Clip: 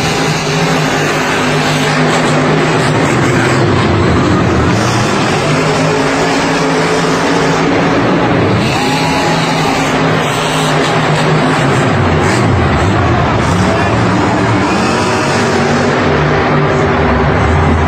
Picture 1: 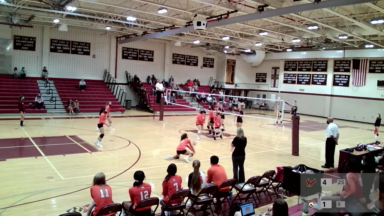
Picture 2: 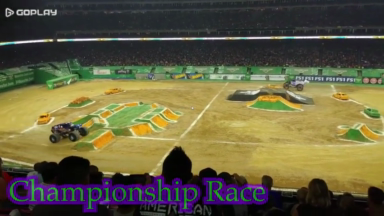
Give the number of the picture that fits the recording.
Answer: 2